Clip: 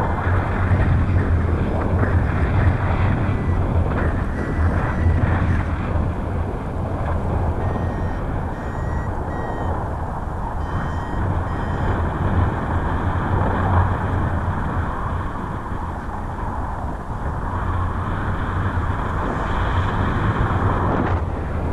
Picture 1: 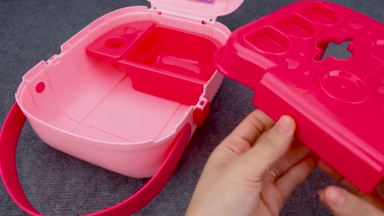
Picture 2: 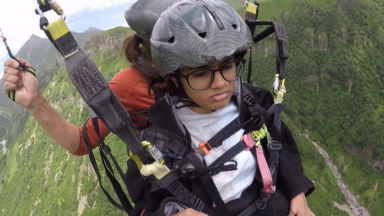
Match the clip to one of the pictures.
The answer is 2